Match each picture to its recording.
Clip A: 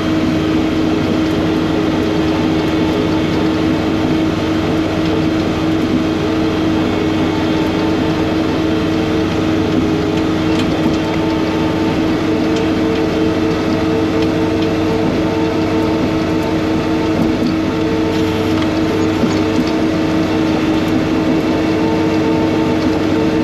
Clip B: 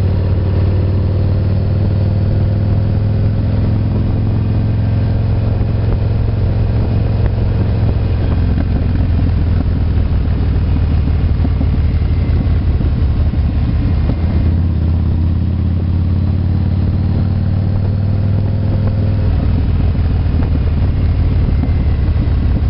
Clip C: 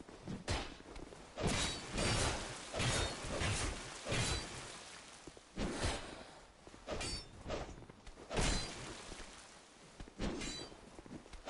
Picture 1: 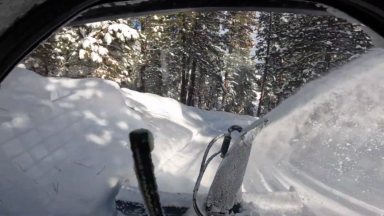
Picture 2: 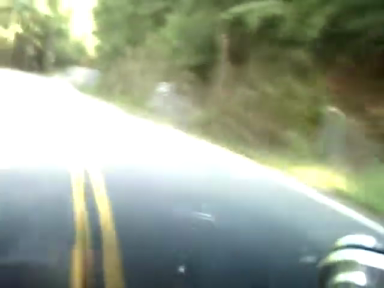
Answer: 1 A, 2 B